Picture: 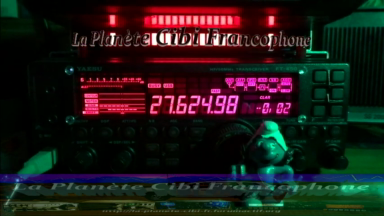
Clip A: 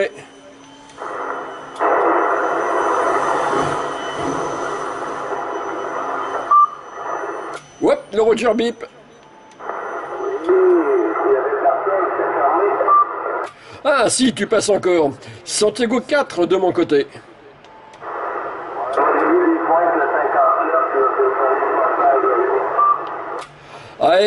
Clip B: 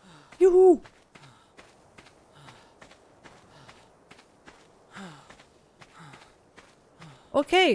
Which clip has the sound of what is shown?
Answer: A